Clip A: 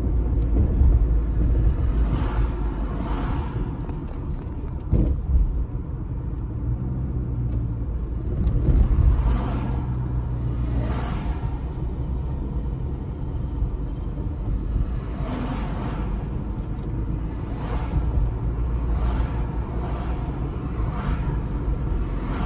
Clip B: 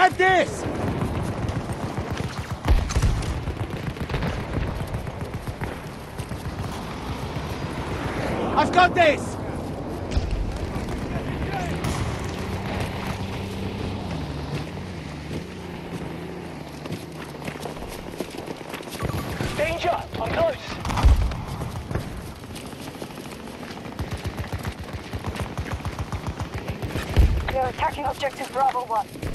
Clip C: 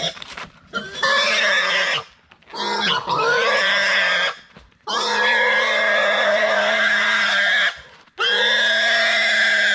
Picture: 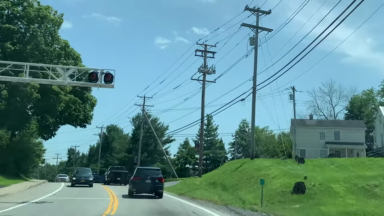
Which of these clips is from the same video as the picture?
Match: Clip A